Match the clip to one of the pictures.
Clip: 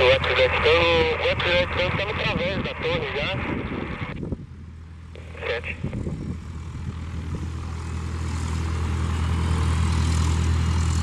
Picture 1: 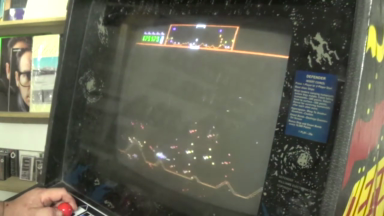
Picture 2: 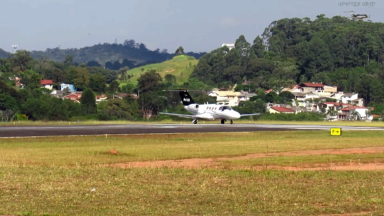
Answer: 2